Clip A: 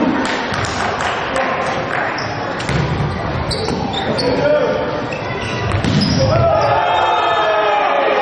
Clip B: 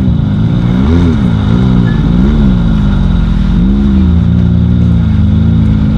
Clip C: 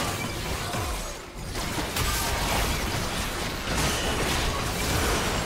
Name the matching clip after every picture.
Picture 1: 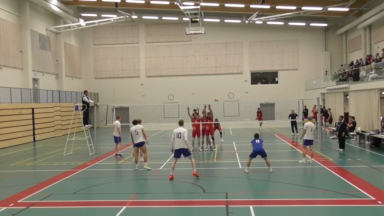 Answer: A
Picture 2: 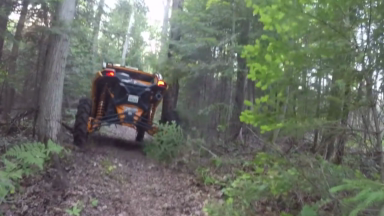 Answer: B